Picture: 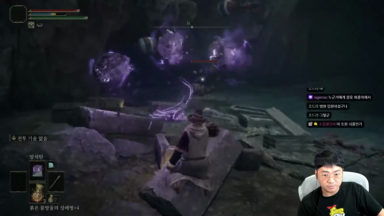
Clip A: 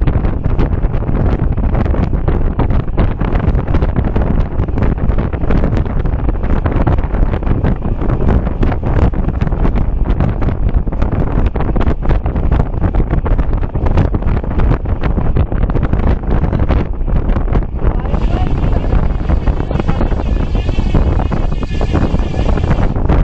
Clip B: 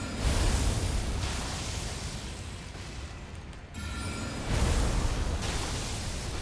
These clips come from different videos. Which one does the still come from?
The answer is B